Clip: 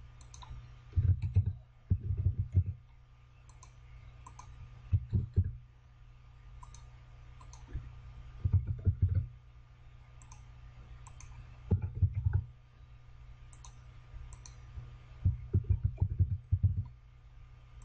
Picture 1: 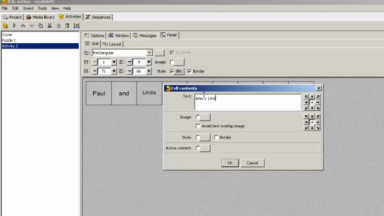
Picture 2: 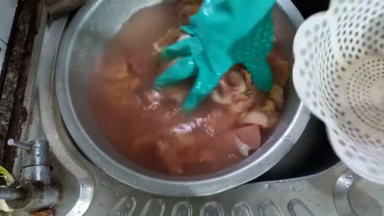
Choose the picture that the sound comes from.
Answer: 1